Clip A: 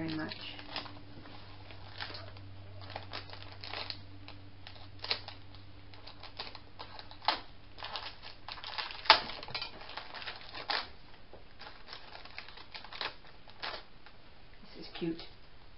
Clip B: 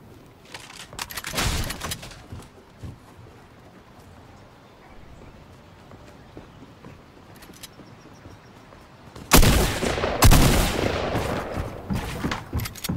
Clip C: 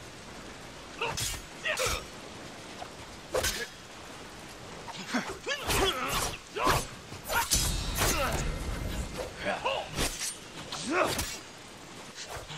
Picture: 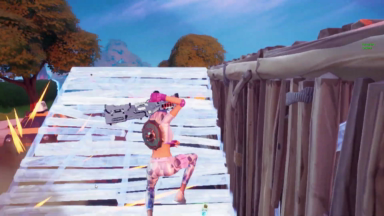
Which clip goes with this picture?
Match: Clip B